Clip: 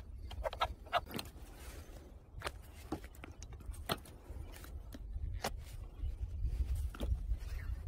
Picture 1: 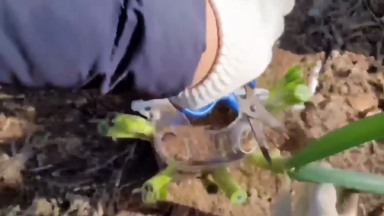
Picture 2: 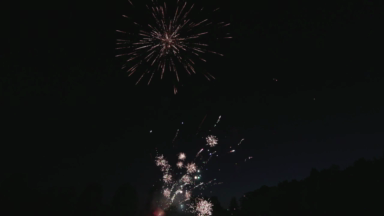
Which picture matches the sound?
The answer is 1